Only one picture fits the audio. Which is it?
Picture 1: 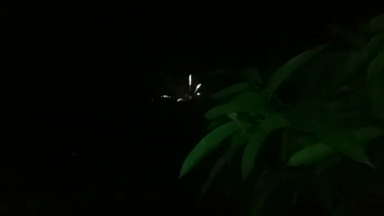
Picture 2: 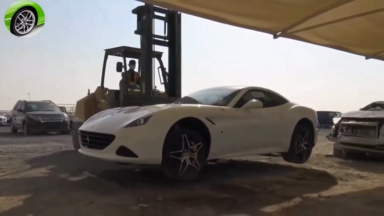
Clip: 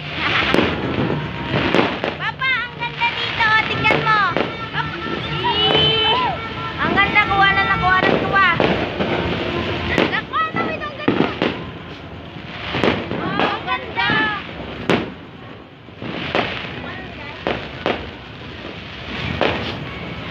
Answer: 1